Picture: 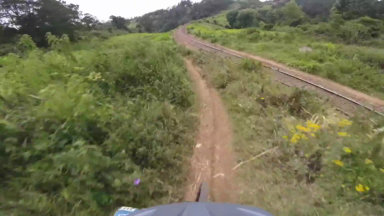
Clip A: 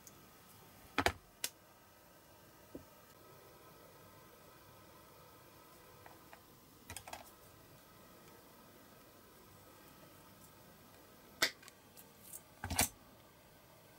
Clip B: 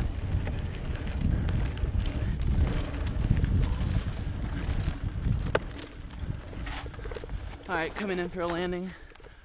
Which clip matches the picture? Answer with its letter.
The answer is B